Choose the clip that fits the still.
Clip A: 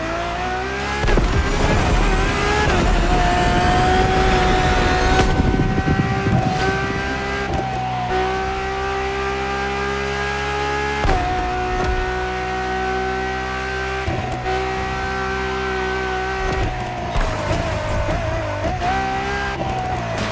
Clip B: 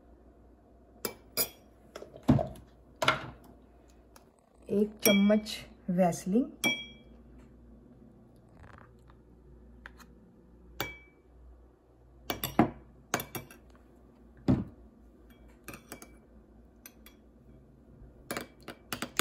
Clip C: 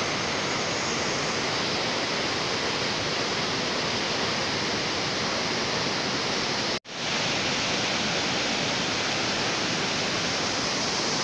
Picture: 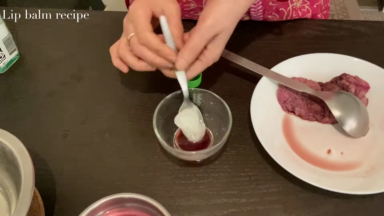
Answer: B